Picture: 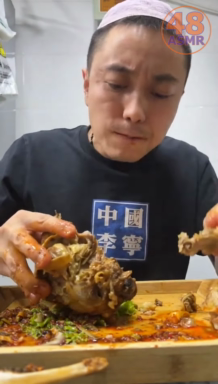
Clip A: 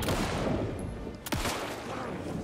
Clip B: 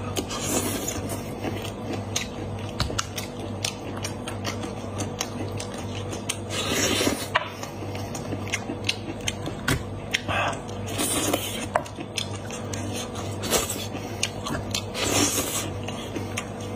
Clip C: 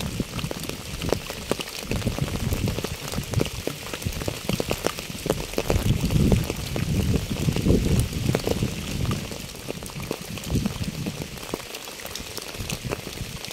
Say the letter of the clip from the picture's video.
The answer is B